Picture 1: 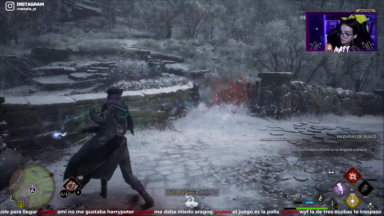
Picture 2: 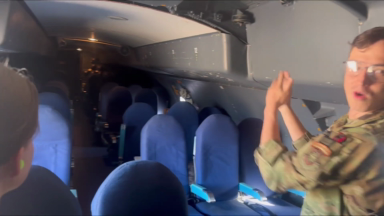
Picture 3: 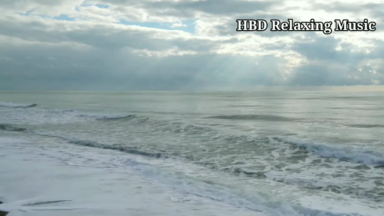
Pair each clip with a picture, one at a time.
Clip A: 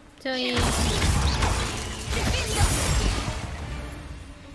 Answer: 1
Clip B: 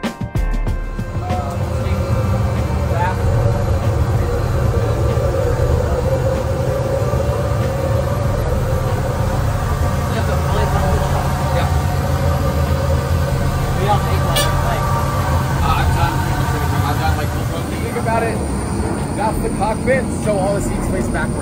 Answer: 2